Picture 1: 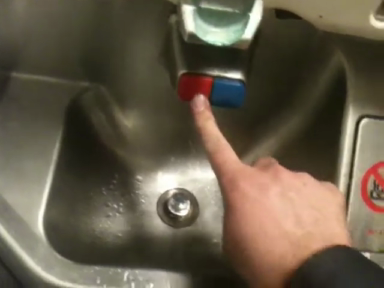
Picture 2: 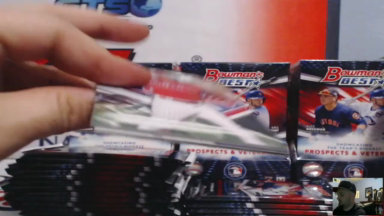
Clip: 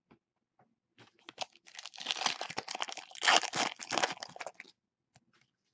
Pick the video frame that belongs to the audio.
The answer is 2